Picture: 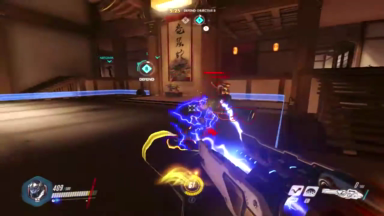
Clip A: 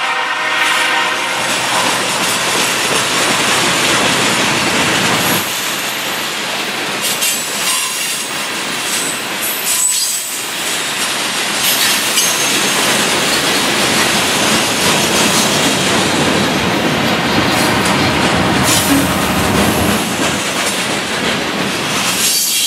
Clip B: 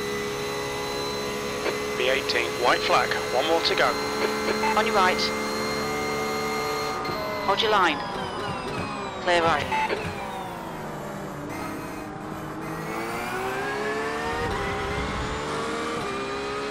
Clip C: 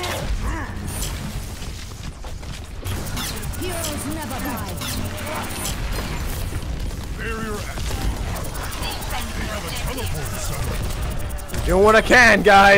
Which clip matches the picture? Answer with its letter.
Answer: C